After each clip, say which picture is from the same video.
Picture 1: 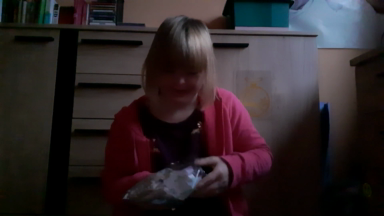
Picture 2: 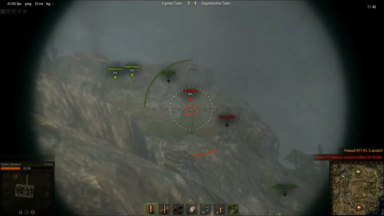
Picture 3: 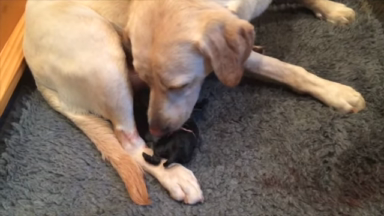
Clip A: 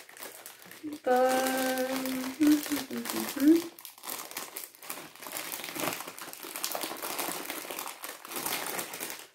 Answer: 1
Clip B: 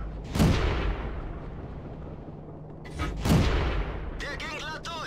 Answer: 2